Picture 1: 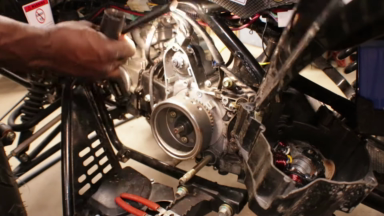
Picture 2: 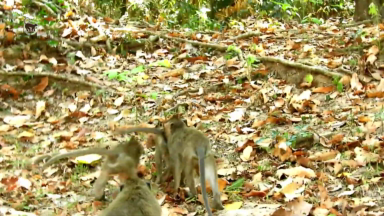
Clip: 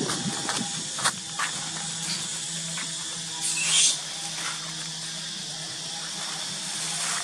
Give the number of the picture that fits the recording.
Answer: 2